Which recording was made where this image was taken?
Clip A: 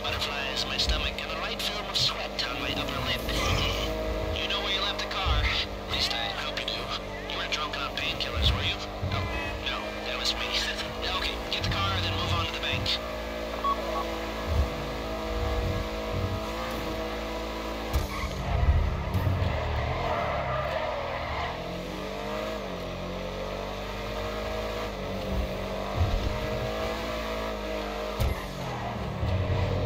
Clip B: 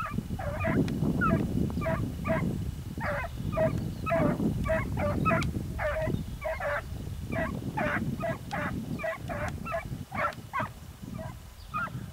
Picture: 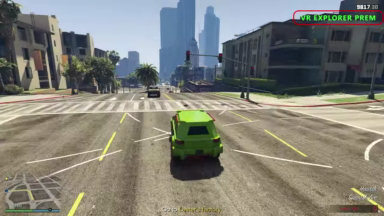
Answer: A